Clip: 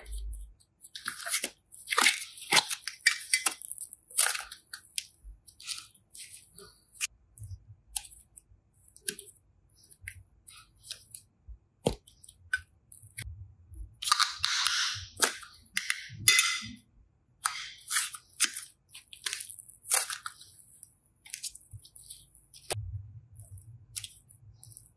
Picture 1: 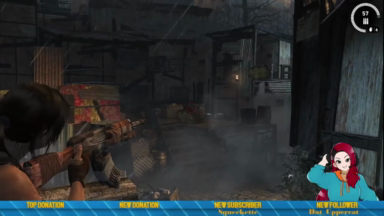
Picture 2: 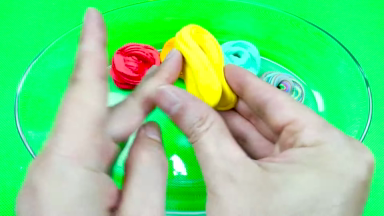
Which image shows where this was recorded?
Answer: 2